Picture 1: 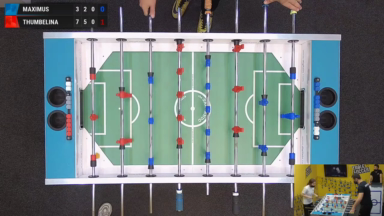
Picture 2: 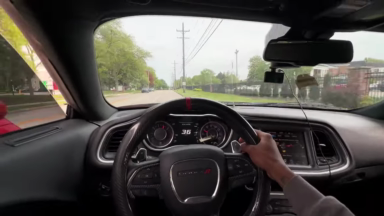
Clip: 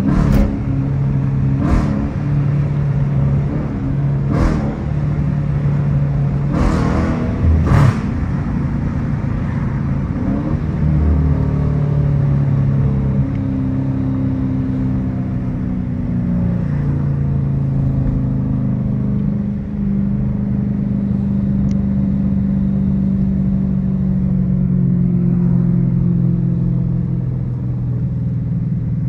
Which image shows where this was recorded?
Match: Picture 2